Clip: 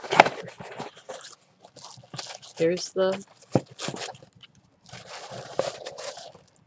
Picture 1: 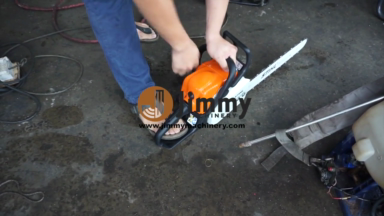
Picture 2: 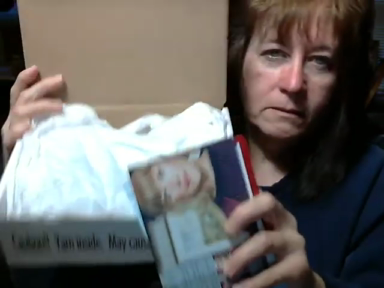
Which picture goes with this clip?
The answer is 2